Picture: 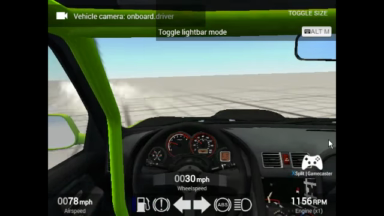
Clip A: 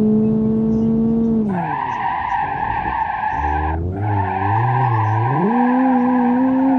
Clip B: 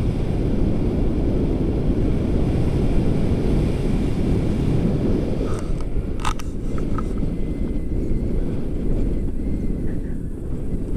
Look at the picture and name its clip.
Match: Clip A